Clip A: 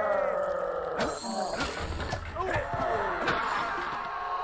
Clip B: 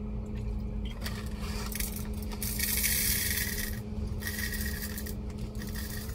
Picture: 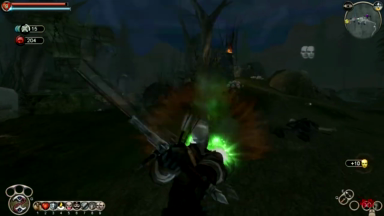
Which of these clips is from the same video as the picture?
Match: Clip A